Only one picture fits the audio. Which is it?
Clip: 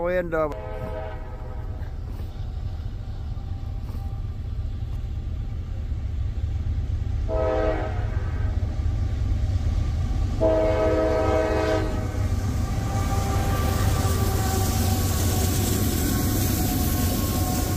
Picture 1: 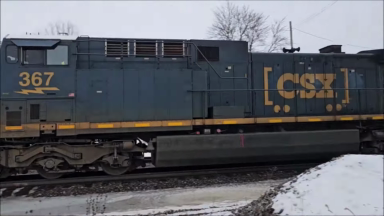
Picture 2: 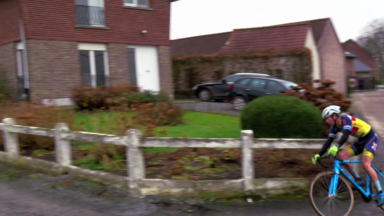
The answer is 1